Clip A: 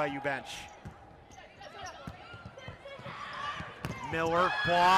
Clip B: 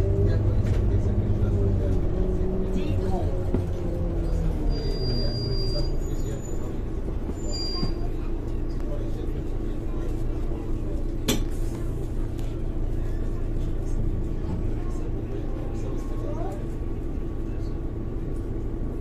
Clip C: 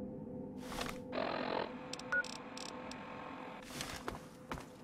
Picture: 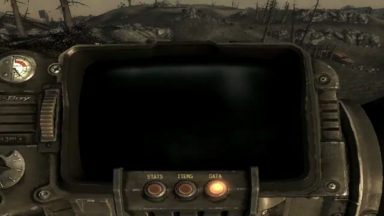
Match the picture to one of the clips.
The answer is C